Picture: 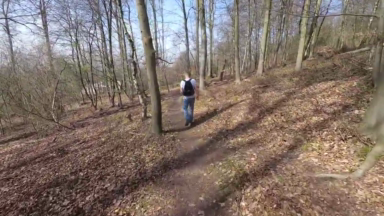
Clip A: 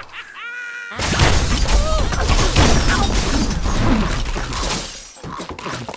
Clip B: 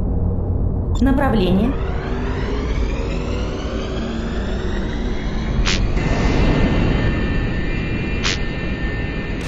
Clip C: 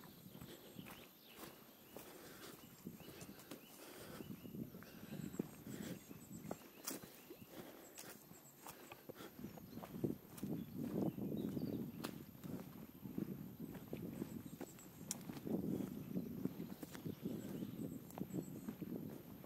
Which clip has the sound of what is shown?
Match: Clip C